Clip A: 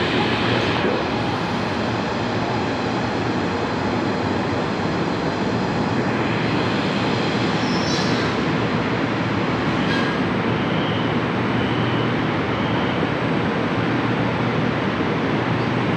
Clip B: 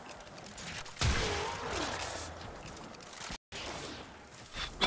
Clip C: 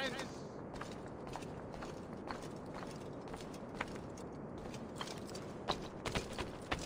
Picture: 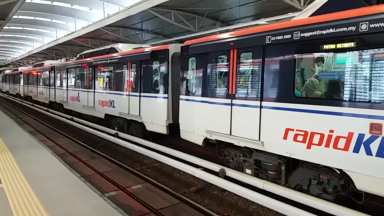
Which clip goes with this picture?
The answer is A